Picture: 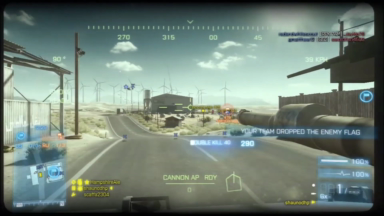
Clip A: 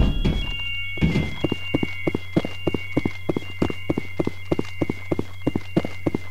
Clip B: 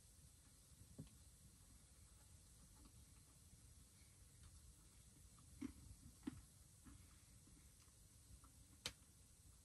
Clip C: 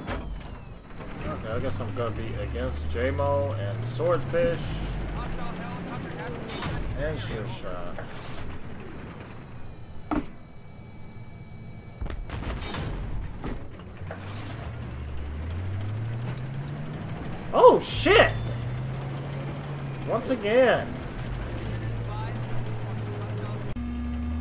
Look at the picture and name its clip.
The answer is C